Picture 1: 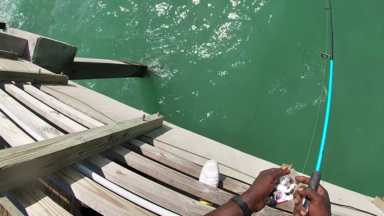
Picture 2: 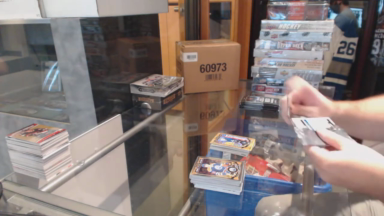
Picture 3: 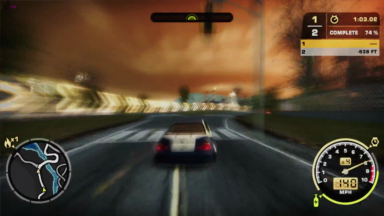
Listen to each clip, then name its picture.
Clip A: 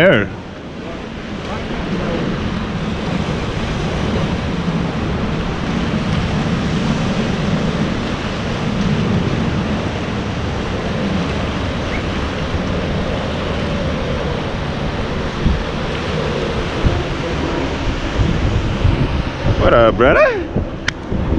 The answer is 1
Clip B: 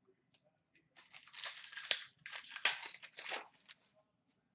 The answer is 2